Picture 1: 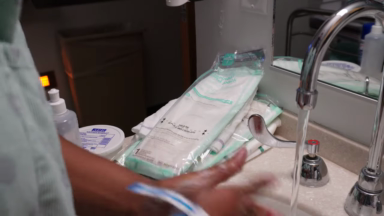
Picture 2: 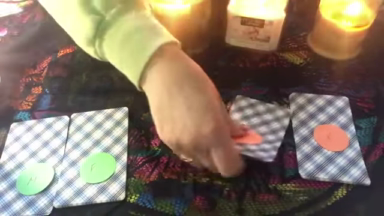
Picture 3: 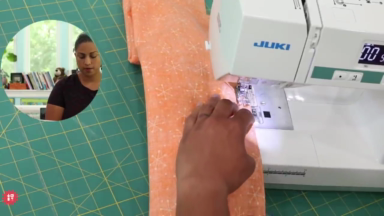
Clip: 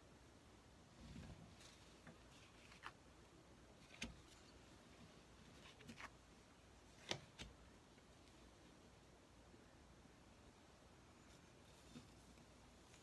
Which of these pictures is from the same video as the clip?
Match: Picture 2